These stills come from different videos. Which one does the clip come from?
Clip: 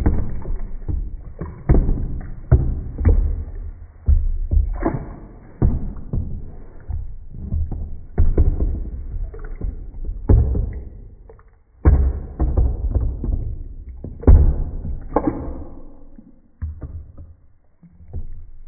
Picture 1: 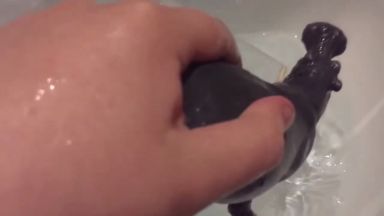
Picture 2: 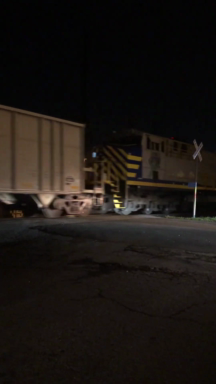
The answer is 1